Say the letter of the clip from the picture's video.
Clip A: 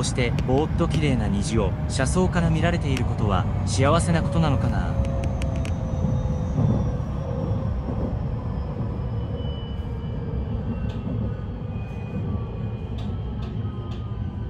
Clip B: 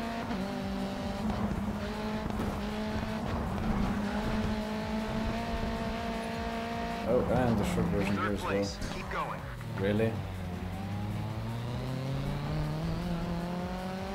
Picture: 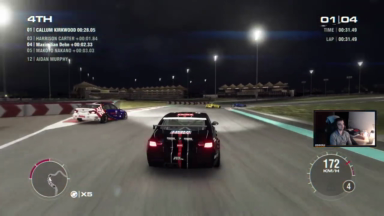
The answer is B